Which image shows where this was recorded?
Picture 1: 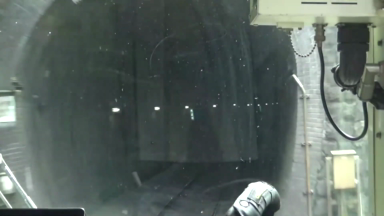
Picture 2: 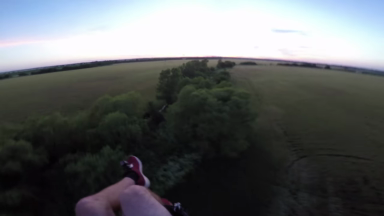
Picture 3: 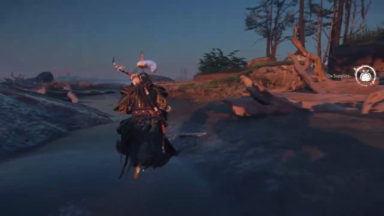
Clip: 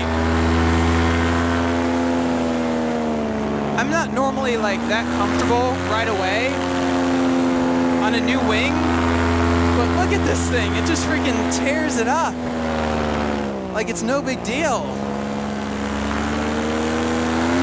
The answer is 2